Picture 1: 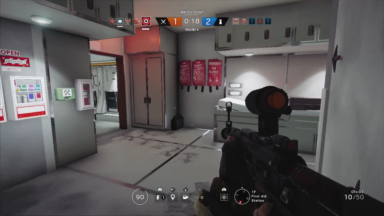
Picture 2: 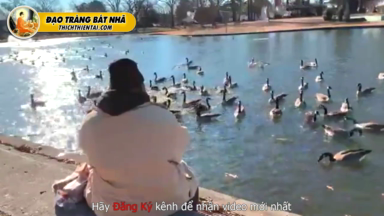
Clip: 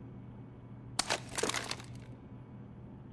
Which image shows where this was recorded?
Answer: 1